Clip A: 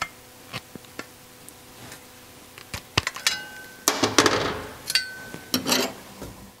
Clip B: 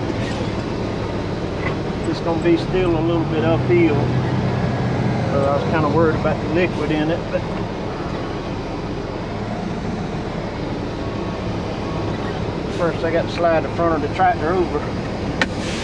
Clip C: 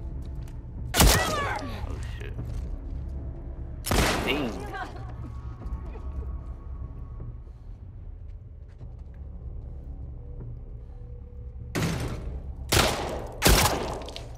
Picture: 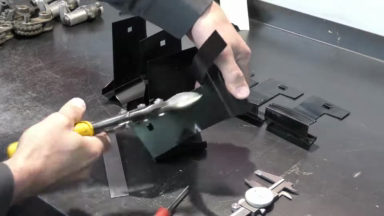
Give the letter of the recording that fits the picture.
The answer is A